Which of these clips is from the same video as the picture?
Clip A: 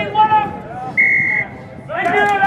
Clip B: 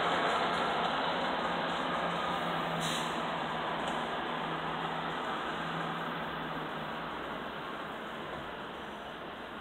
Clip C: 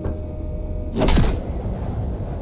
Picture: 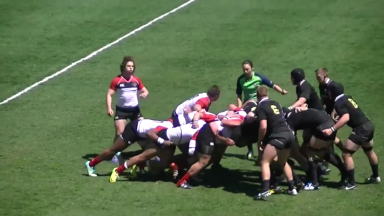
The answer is A